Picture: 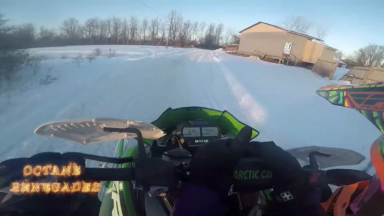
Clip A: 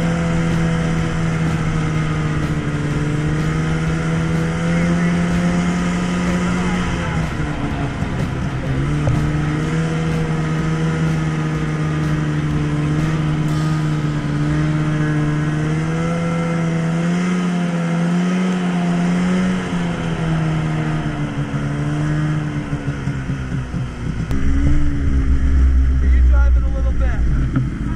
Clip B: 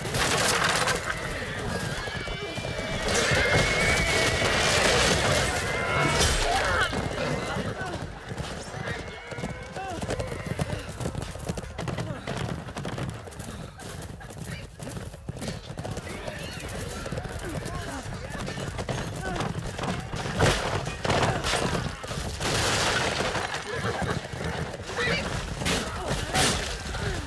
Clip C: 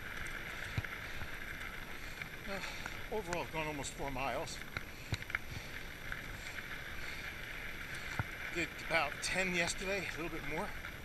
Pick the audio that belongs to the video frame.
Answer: A